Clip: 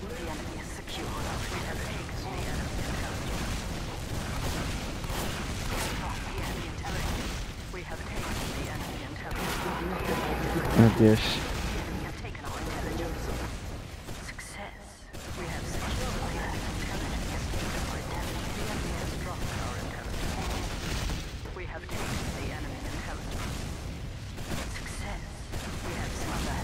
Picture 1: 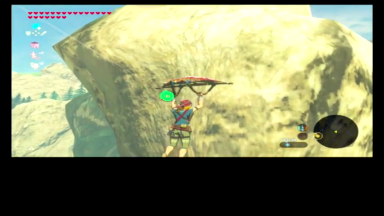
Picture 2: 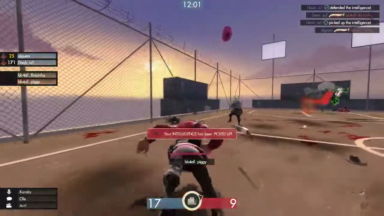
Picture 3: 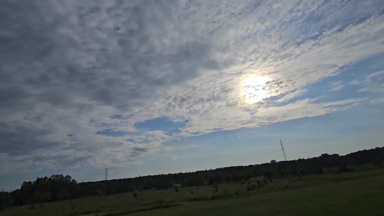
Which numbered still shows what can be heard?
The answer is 2